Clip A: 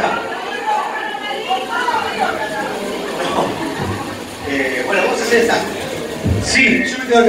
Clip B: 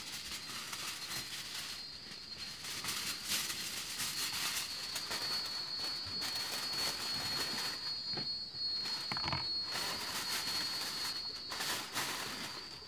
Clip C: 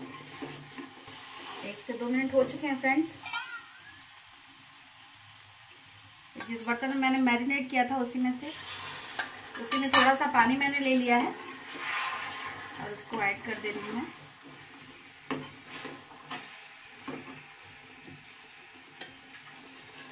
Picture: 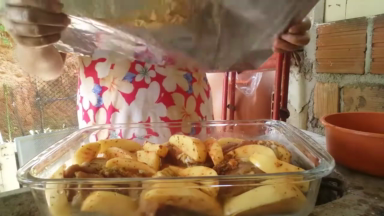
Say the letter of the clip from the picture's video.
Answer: B